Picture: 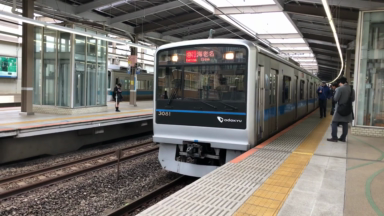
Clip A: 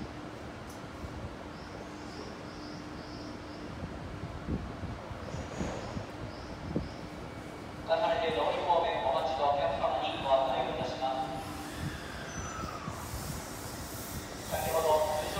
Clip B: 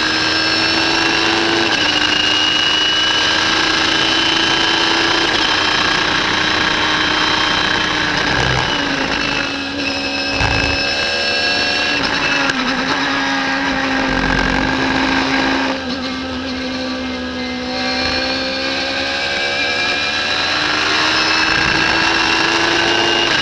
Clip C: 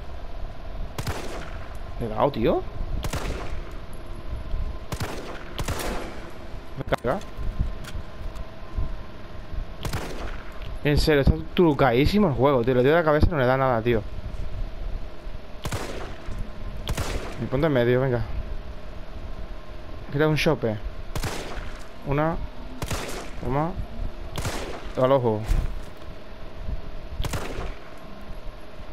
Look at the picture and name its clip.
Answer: A